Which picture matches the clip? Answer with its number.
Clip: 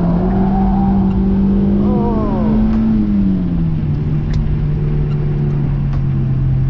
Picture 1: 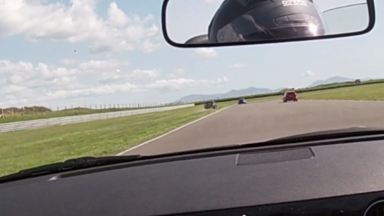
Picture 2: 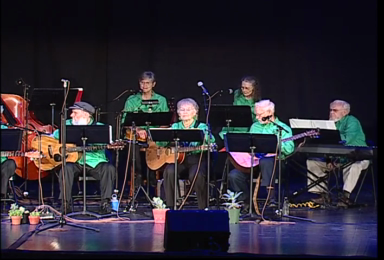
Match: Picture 1